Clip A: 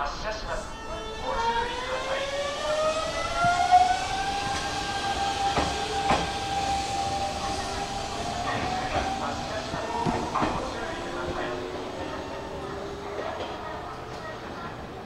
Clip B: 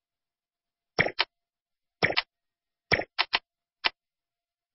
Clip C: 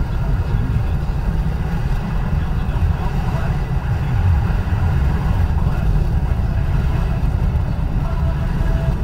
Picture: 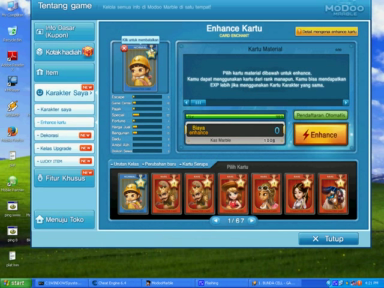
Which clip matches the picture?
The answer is B